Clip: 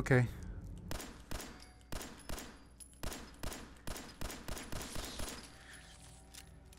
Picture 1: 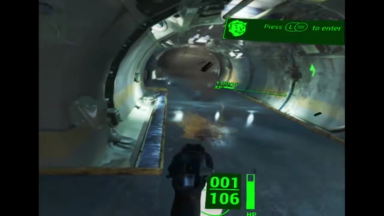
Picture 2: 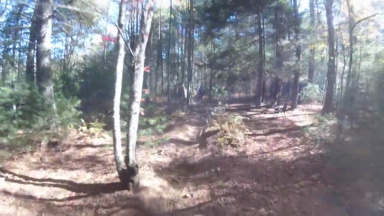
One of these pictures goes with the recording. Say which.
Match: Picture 1